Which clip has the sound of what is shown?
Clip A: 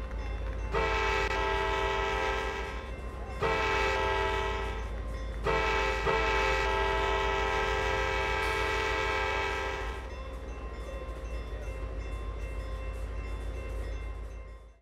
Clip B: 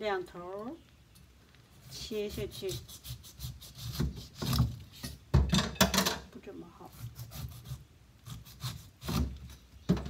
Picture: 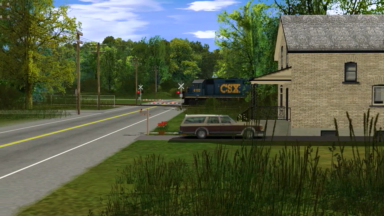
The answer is A